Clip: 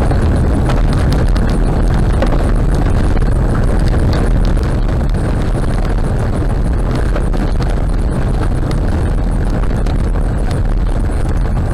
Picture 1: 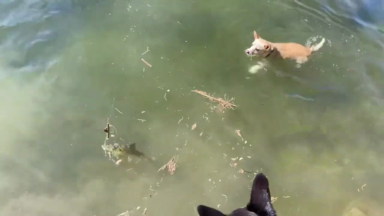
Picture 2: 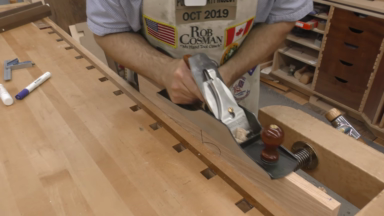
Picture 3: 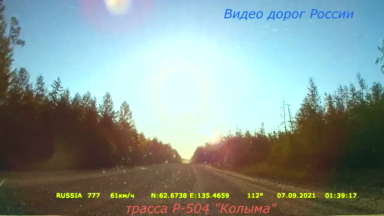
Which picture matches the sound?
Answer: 3